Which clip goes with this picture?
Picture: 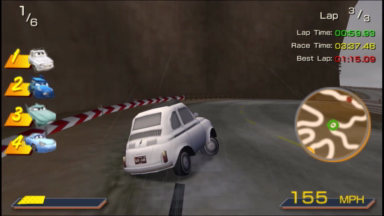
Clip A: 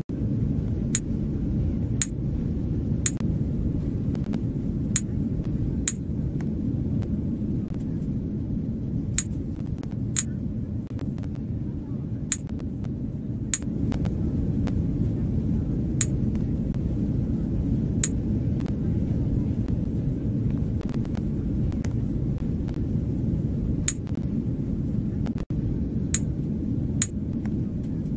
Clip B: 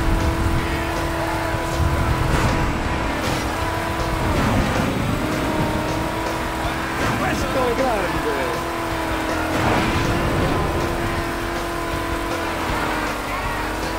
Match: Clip B